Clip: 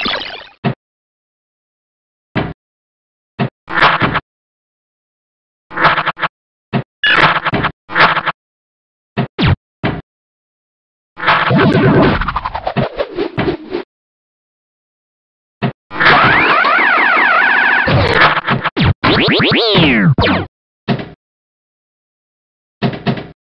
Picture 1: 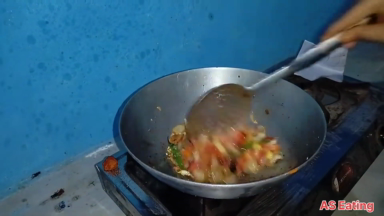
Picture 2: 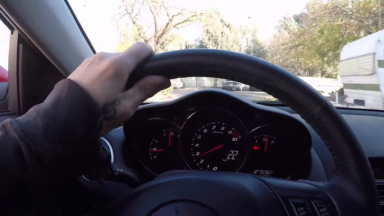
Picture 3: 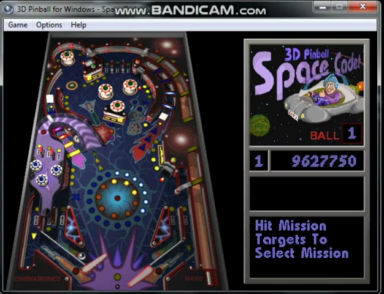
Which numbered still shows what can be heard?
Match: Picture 3